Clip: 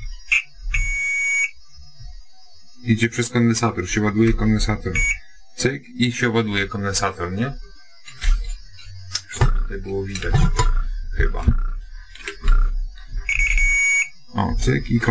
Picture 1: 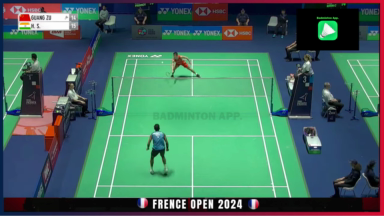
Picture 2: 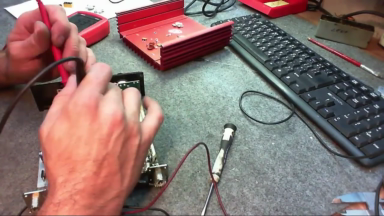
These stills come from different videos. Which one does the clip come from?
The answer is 2